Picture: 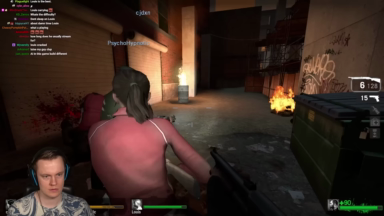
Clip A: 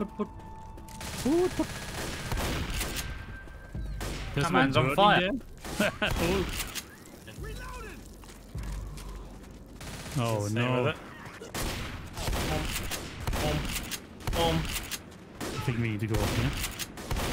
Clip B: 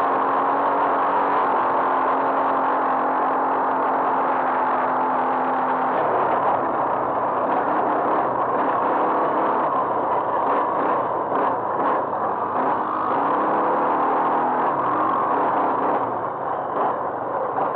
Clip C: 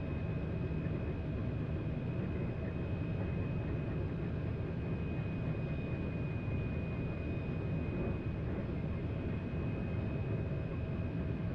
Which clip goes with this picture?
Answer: A